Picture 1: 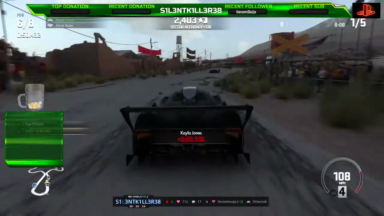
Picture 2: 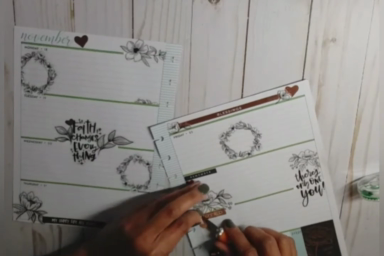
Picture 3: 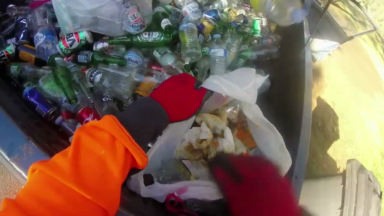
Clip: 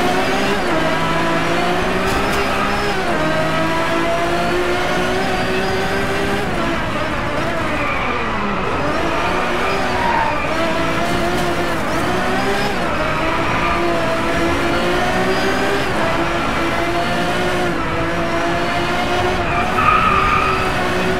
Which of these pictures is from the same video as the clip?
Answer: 1